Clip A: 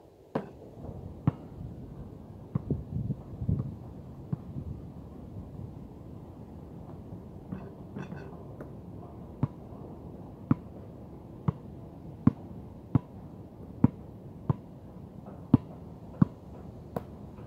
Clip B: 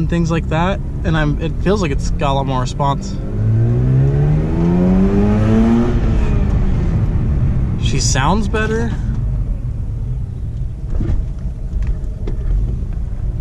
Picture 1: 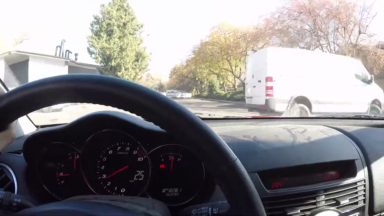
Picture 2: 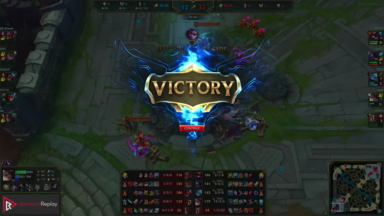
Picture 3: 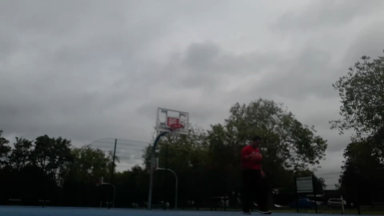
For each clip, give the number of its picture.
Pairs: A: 3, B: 1